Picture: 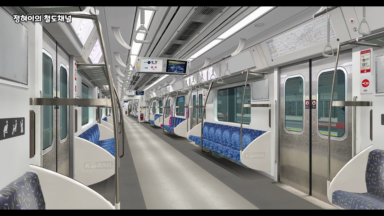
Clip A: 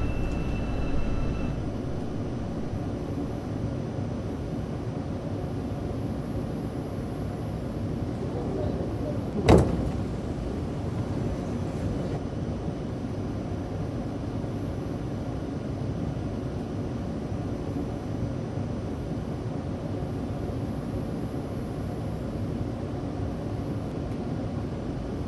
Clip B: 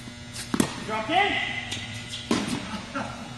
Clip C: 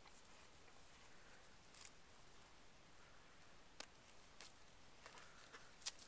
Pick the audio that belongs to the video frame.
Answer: A